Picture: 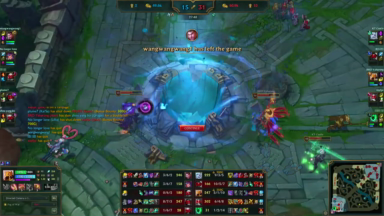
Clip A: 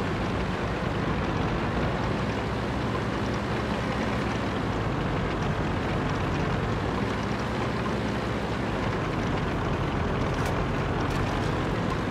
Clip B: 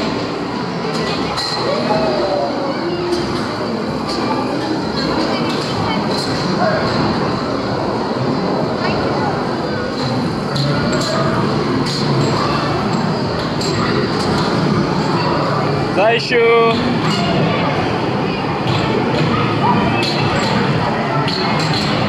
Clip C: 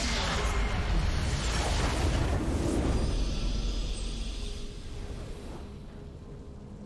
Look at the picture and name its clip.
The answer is C